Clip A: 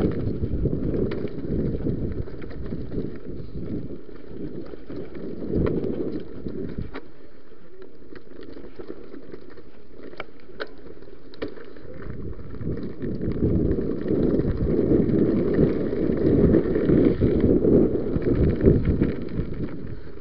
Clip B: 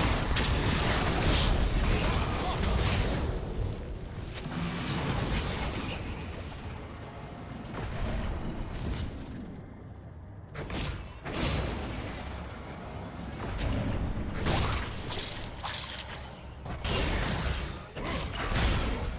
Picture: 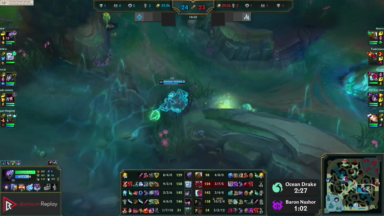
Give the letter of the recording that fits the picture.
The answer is B